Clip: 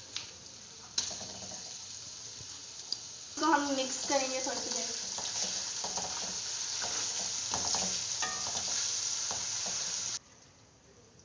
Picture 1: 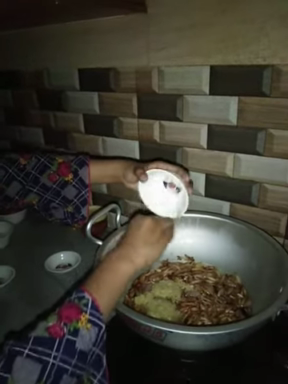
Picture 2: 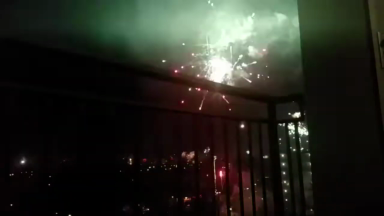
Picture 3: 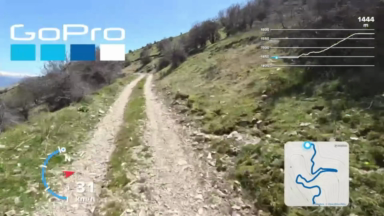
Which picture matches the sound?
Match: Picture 1